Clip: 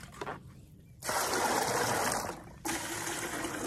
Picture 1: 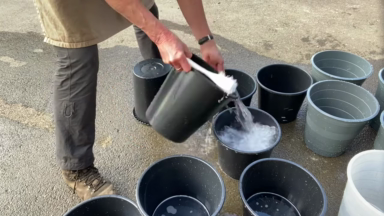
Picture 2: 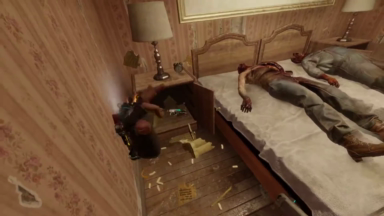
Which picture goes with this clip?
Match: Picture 1